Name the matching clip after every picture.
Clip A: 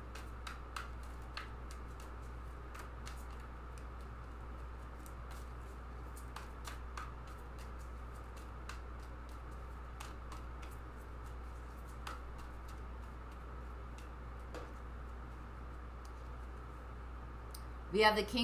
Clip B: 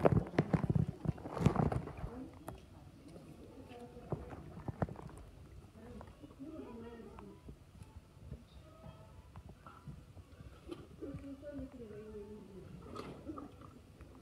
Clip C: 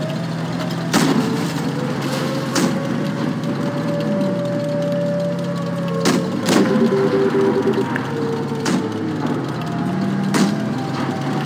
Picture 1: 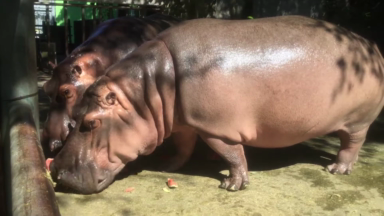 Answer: B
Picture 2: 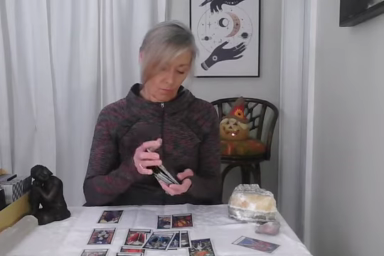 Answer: A